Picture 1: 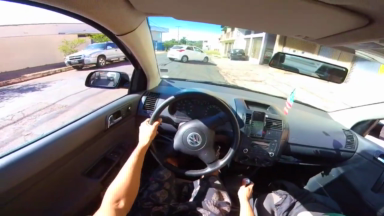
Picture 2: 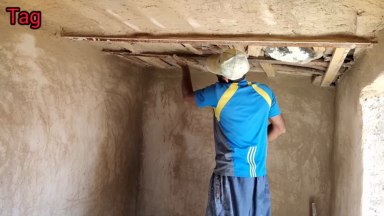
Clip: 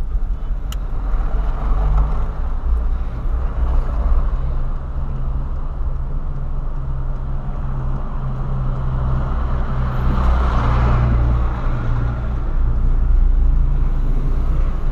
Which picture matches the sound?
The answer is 1